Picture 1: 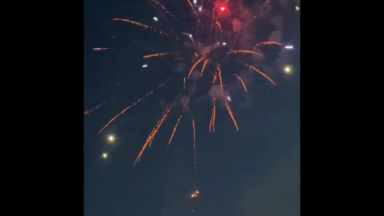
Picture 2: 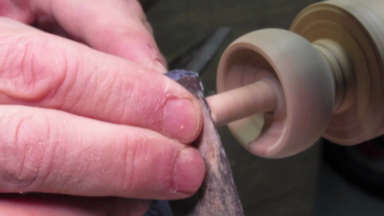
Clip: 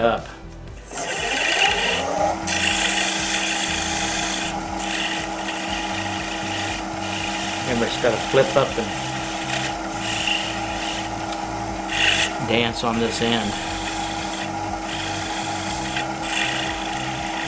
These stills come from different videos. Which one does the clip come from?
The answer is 2